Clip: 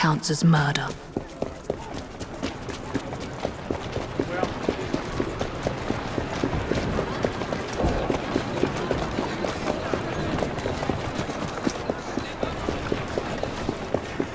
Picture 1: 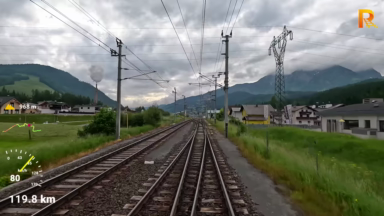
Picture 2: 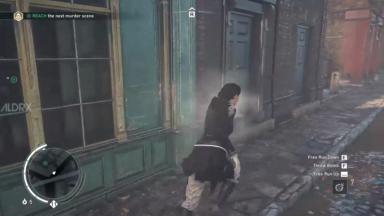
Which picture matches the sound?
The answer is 2